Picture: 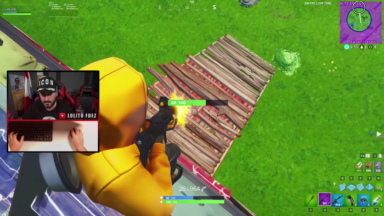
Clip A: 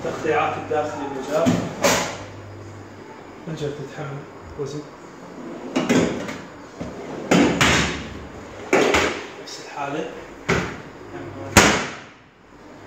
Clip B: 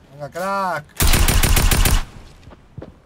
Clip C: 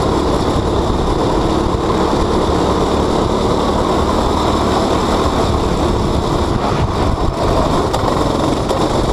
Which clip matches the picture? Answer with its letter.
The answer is B